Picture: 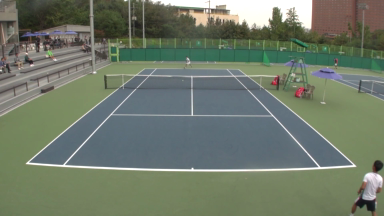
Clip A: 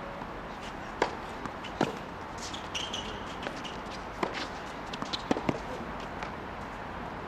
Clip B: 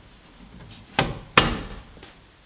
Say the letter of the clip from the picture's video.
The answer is A